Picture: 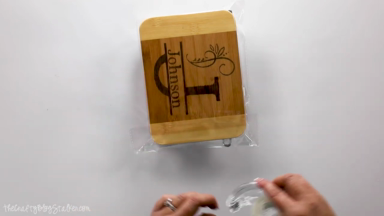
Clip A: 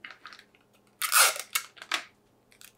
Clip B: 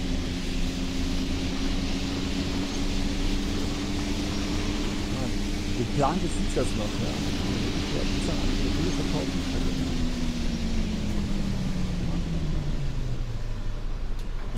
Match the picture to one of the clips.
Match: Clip A